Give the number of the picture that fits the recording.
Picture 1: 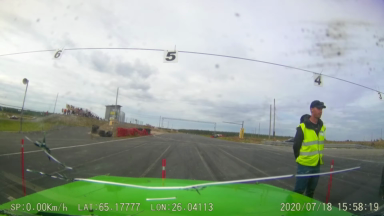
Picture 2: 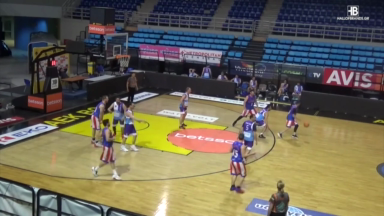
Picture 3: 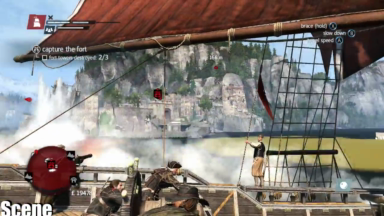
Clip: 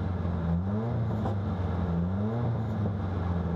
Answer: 1